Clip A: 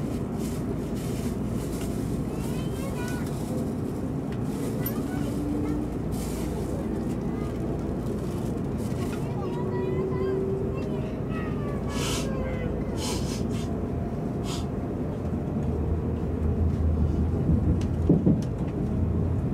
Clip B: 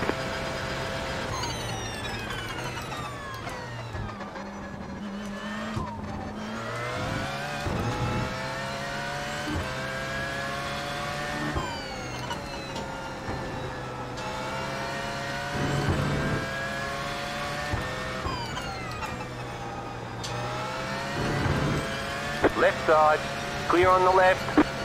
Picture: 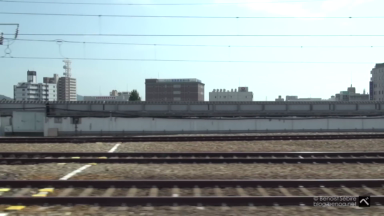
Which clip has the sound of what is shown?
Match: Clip A